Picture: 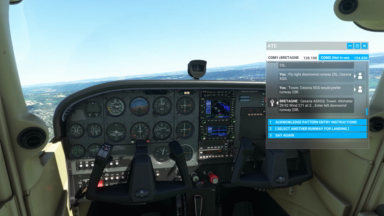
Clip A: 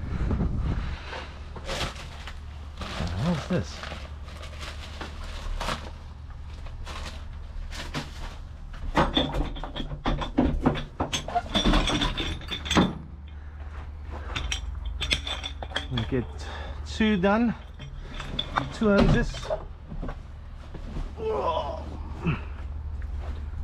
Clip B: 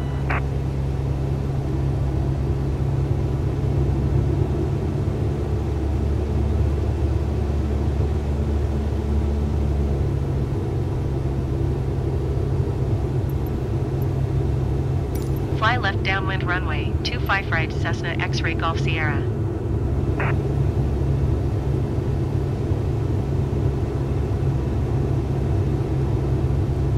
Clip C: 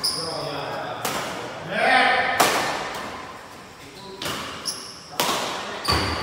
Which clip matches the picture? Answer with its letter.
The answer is B